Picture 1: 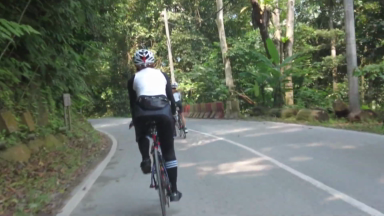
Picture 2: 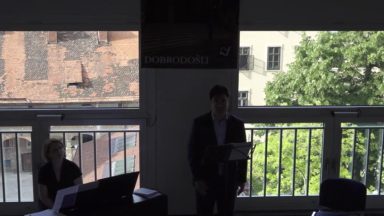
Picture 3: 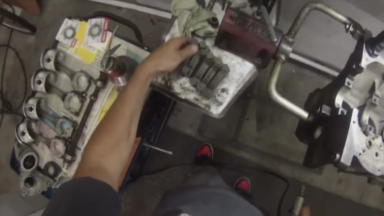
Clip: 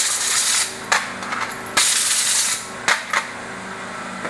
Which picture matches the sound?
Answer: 3